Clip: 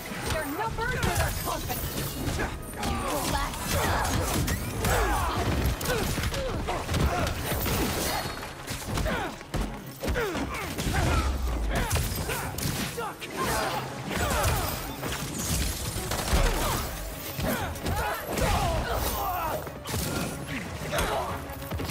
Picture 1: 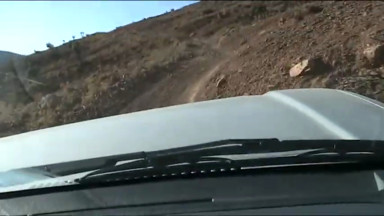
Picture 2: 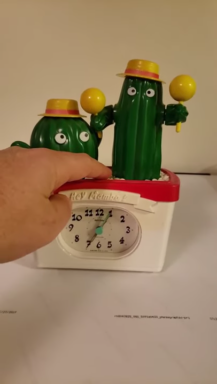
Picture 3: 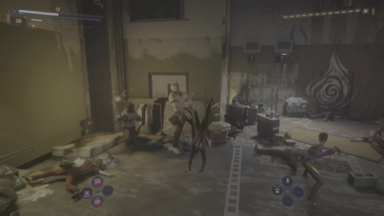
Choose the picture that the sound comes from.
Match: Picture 3